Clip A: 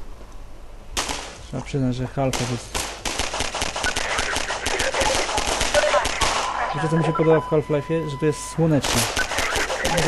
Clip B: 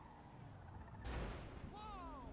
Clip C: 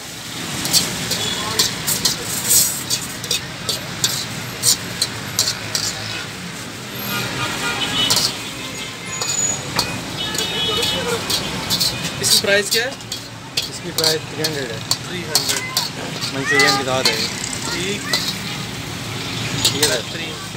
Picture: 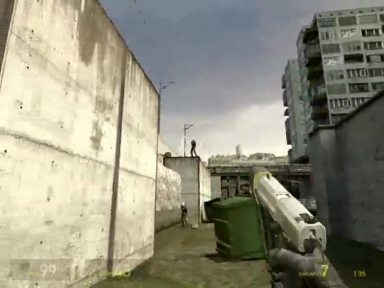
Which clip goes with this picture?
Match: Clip A